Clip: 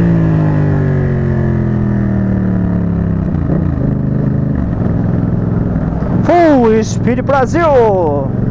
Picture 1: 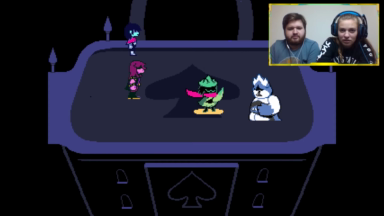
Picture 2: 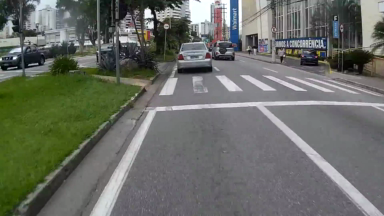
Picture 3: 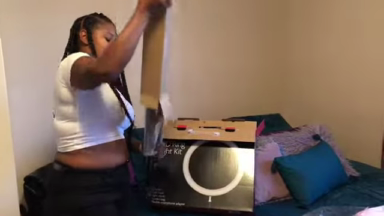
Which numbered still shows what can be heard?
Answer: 2